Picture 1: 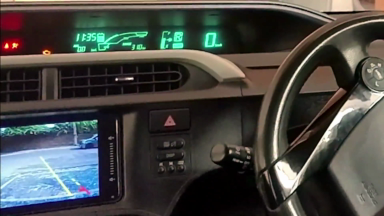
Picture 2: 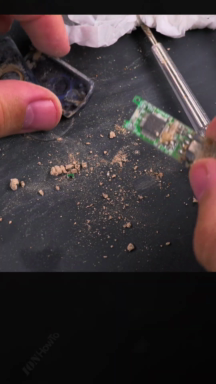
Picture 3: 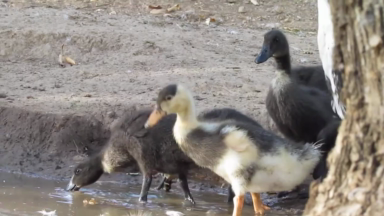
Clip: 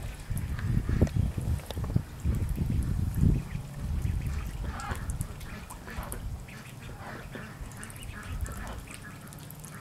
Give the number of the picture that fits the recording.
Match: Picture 3